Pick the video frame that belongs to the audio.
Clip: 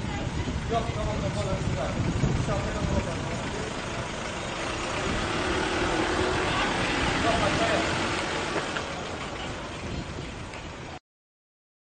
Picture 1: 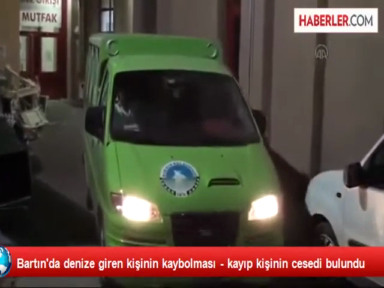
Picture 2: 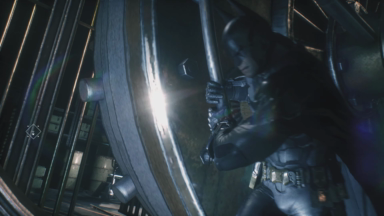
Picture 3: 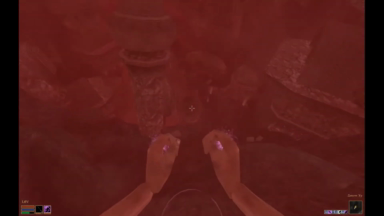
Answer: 1